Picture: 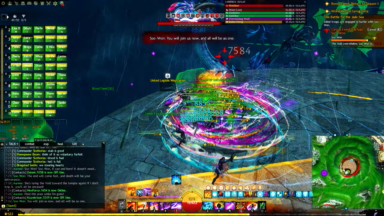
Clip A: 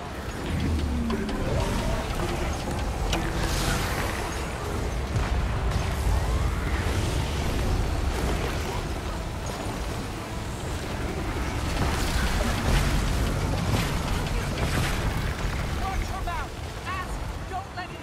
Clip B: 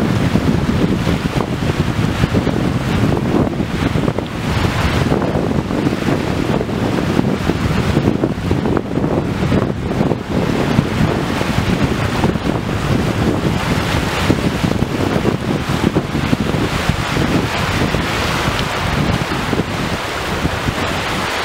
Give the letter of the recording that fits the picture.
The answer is A